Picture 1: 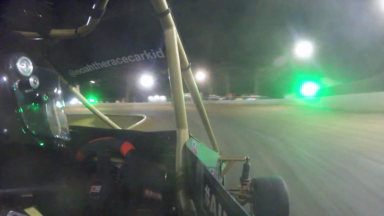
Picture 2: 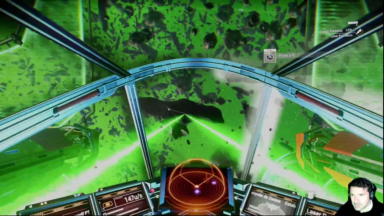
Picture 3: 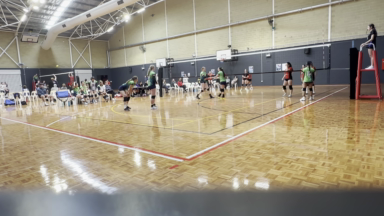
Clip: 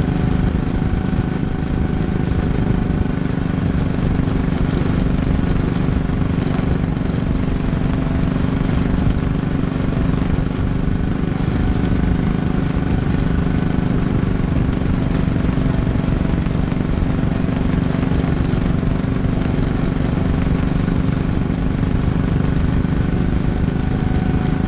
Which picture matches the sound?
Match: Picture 1